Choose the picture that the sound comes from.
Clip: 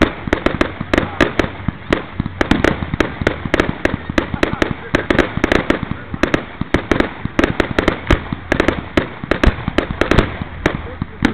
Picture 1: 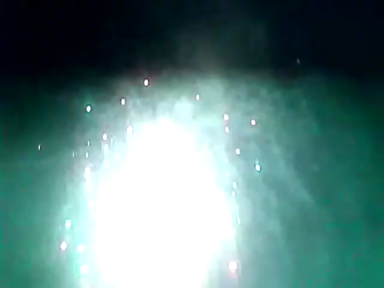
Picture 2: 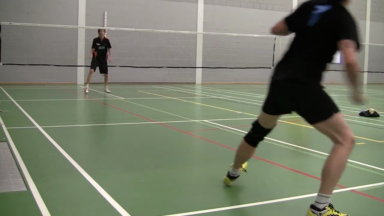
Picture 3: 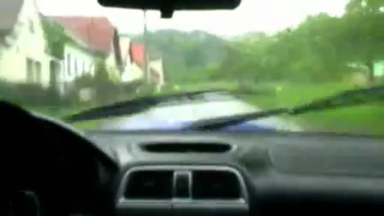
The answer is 1